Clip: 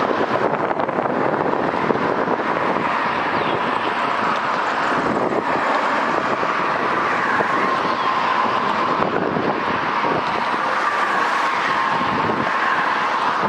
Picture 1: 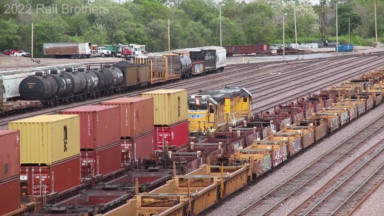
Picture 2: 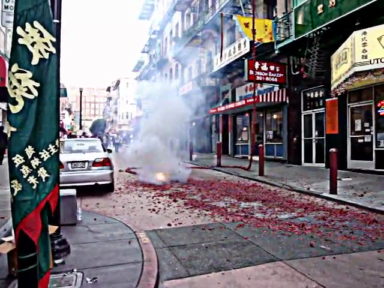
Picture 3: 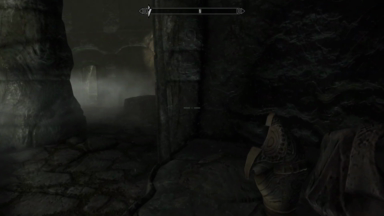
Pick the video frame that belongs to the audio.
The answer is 1